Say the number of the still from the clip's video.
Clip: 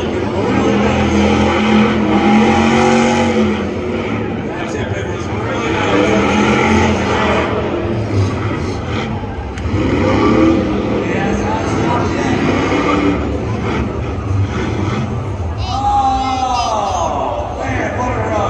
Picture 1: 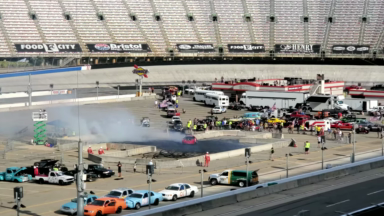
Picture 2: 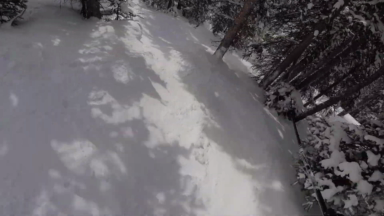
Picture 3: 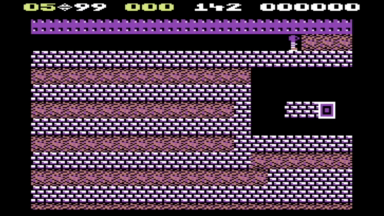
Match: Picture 1